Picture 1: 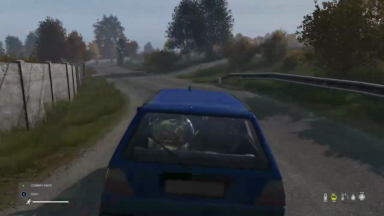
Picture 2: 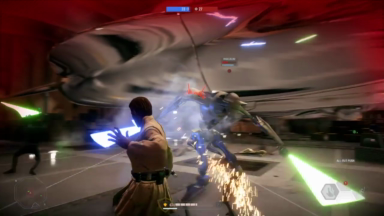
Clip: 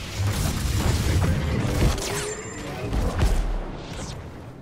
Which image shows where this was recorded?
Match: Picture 2